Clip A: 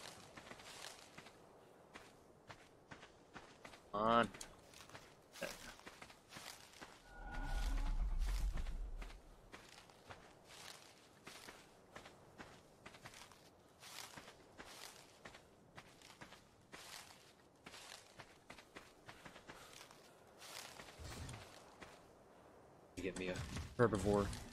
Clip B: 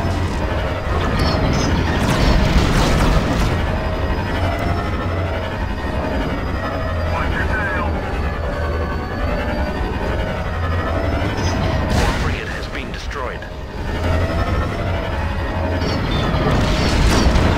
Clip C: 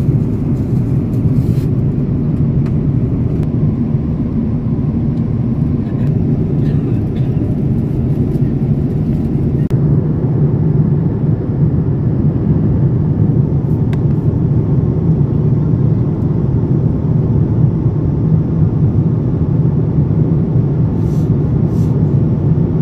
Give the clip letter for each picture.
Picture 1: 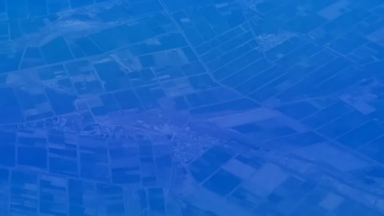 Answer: C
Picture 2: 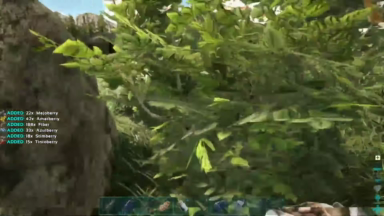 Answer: A